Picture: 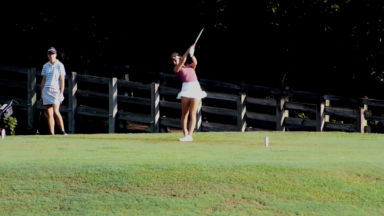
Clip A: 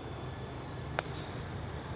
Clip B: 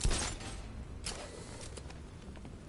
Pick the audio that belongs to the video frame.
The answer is A